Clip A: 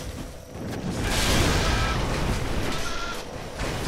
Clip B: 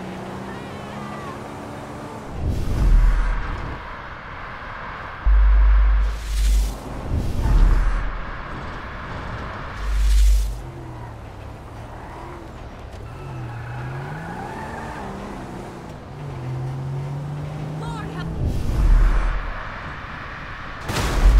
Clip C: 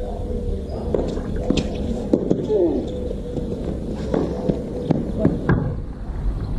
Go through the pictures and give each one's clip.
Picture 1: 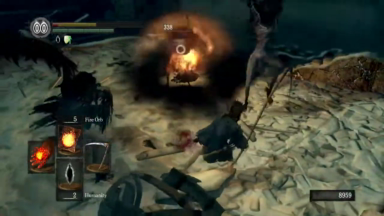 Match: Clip A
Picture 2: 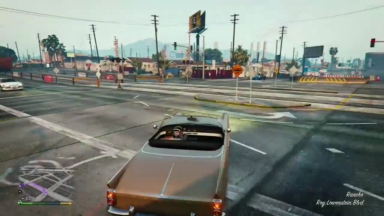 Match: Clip B